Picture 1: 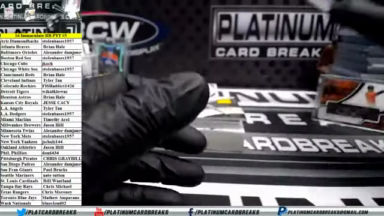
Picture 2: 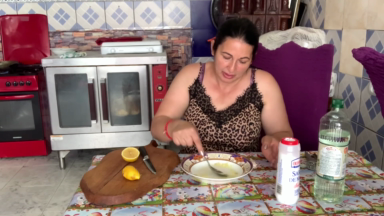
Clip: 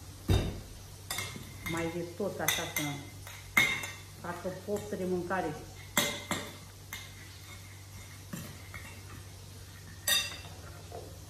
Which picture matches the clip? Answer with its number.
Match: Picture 2